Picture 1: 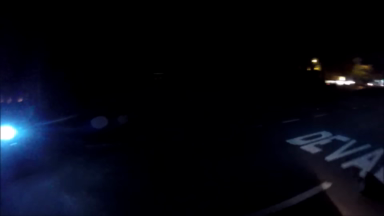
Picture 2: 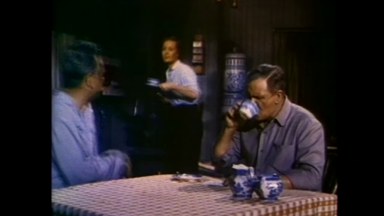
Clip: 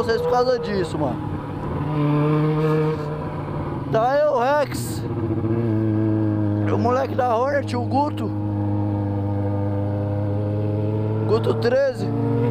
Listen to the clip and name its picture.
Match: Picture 1